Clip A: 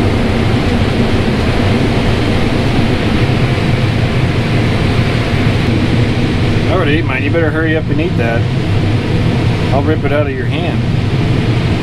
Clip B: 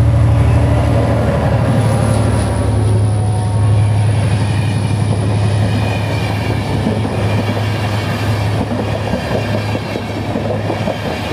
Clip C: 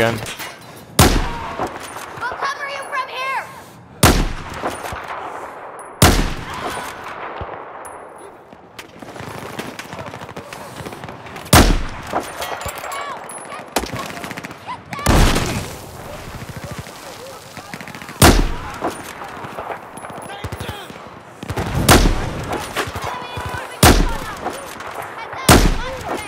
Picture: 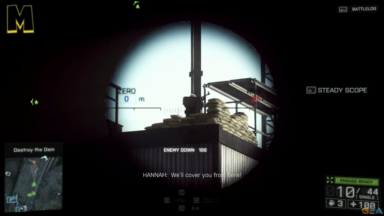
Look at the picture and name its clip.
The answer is C